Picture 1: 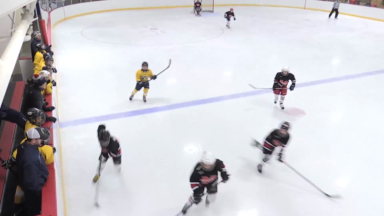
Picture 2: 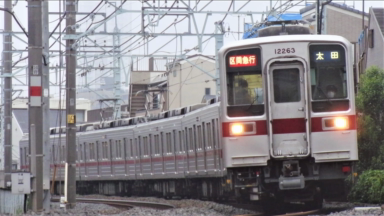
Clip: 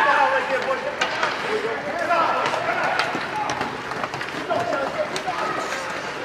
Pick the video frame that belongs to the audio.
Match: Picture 1